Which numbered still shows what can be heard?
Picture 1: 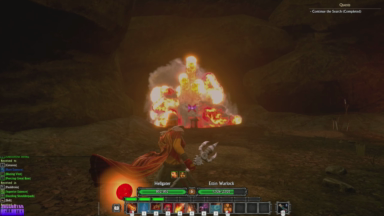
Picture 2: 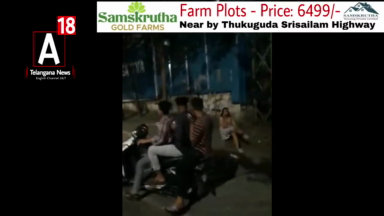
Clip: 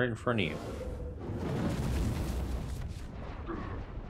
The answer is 1